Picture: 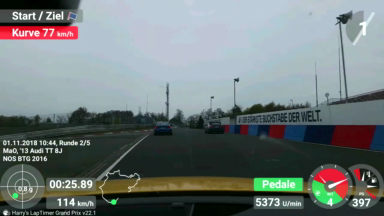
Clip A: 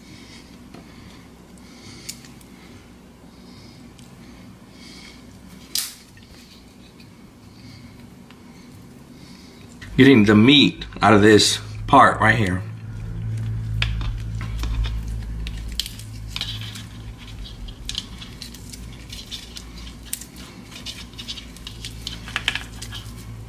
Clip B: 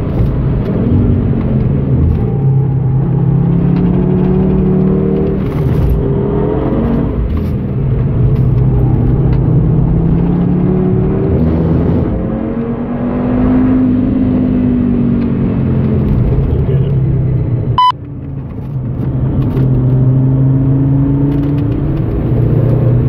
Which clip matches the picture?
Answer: B